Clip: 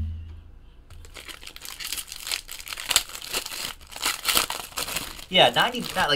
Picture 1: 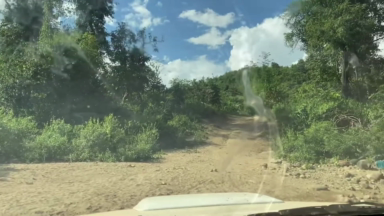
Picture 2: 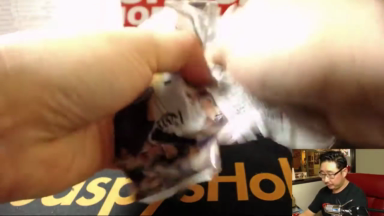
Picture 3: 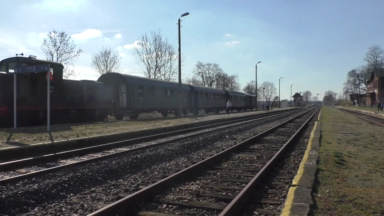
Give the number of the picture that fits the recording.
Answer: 2